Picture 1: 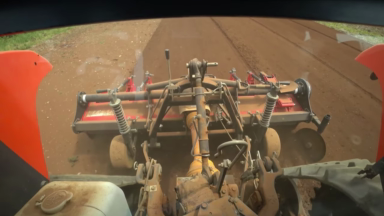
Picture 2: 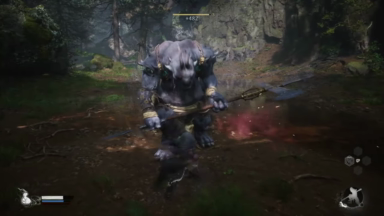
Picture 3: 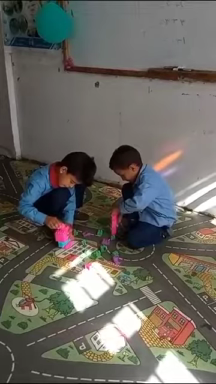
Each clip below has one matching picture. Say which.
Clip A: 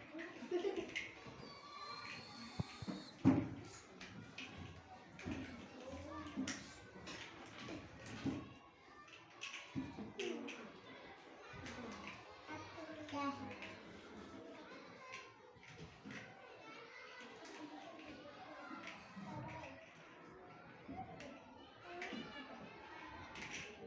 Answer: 3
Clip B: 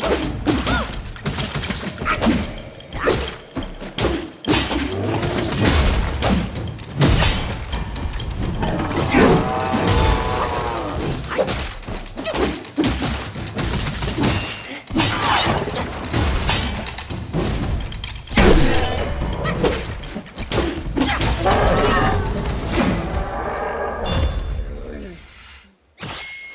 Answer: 2